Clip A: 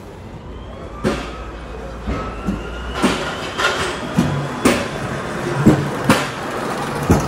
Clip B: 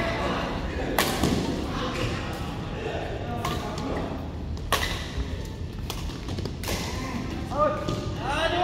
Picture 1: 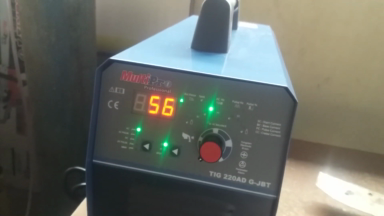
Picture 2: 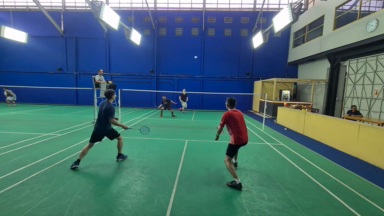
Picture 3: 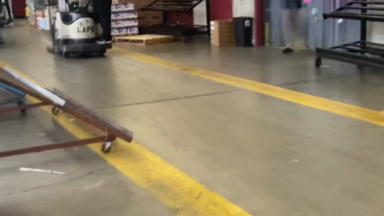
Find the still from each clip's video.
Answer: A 3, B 2